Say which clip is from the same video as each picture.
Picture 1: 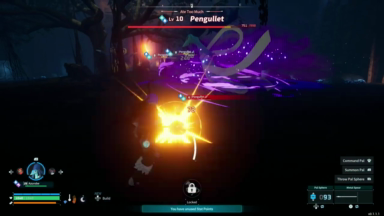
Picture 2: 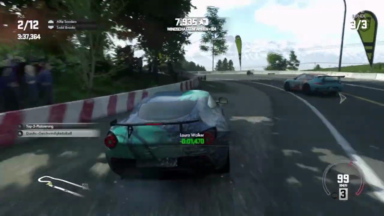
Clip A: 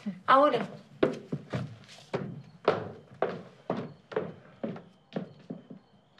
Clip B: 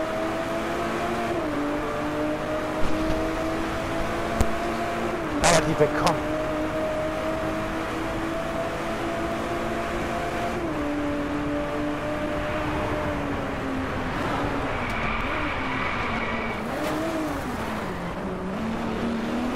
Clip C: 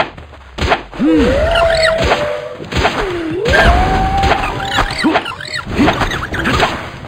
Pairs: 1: C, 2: B